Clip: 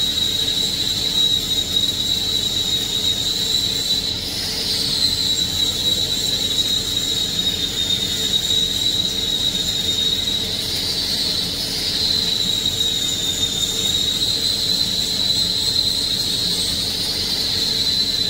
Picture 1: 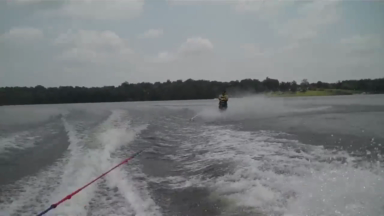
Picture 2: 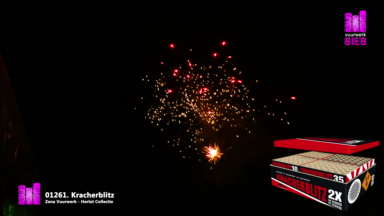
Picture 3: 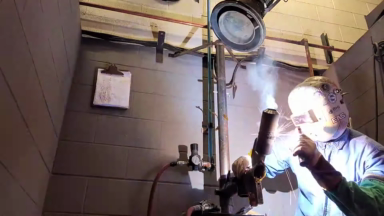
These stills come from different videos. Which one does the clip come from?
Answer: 3